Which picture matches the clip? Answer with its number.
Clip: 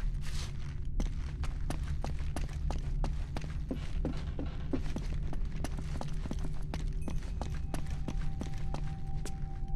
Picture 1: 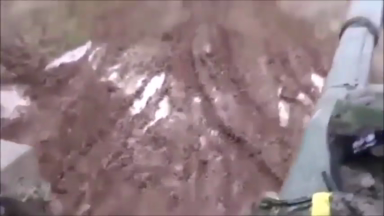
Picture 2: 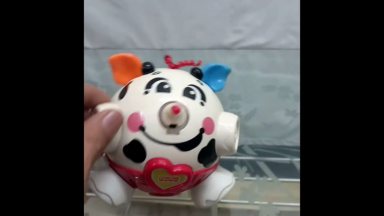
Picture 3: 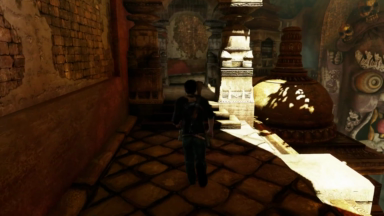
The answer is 3